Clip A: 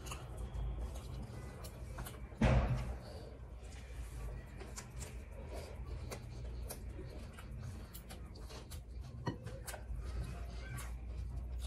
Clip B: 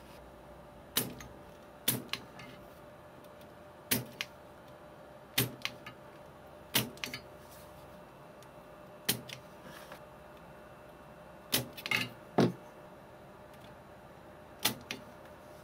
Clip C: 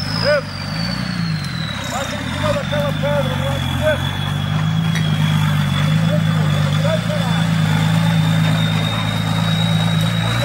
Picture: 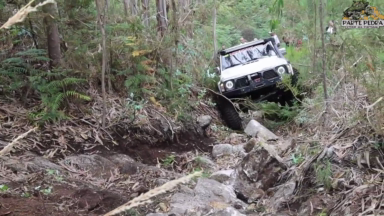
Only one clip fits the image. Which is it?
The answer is C